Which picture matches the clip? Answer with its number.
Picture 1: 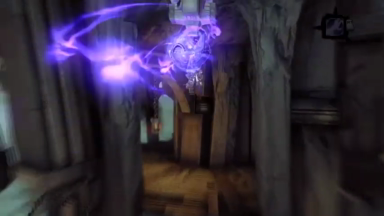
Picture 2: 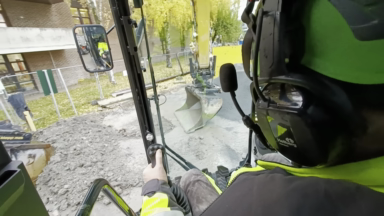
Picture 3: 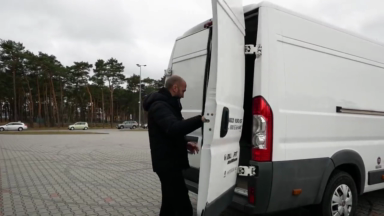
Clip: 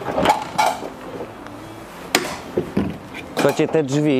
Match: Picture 3